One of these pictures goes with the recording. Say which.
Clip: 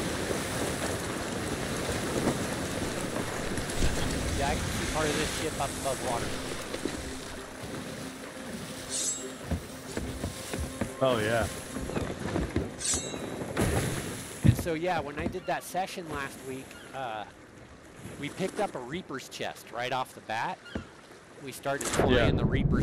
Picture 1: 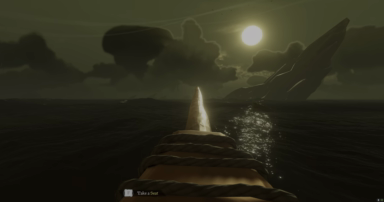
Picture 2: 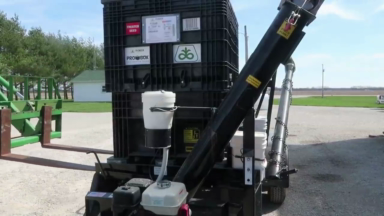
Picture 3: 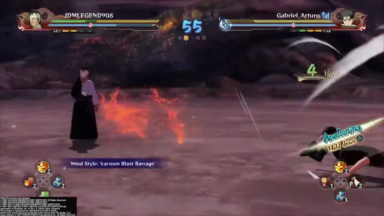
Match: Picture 1